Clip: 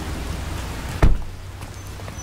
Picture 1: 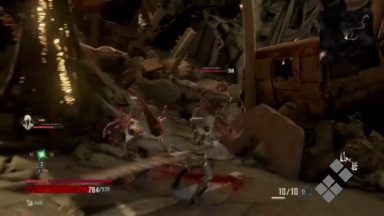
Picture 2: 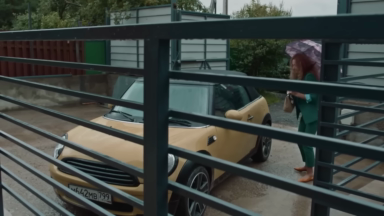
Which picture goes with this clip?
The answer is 2